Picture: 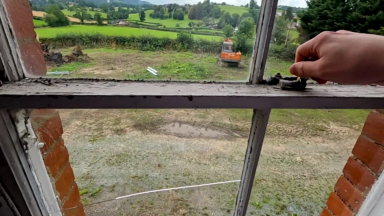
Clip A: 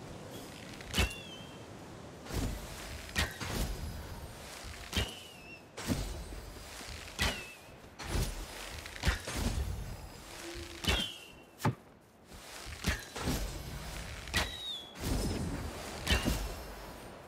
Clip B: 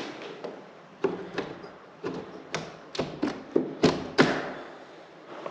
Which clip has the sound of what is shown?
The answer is B